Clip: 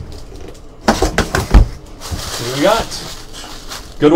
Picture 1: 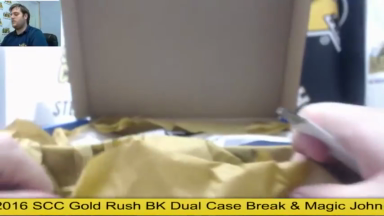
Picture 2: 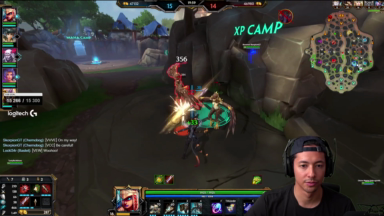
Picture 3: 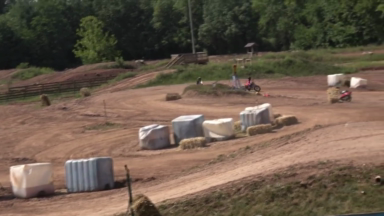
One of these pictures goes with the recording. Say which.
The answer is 1